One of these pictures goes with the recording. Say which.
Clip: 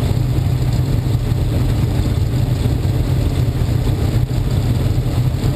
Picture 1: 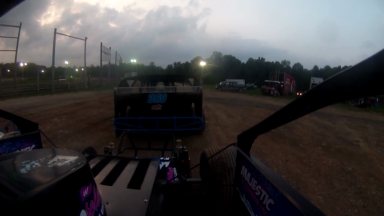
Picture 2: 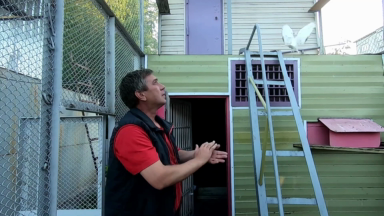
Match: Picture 1